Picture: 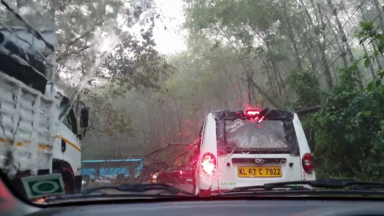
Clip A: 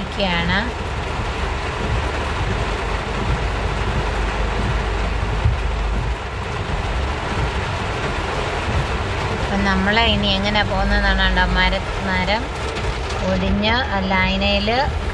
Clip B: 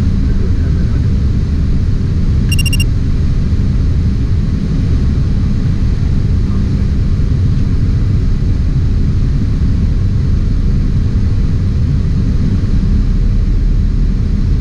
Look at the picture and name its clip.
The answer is A